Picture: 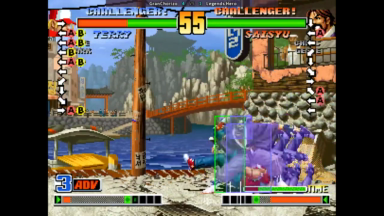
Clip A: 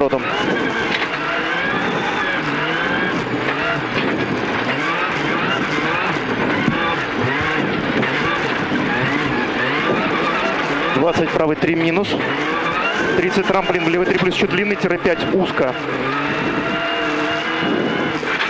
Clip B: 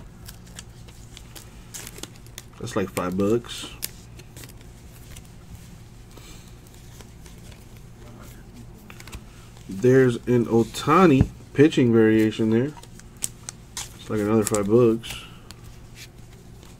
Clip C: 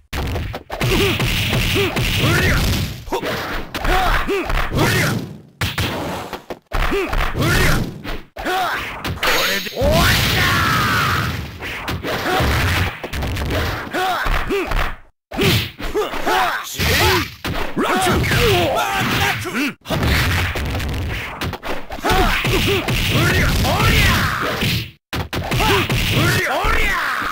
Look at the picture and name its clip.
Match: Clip C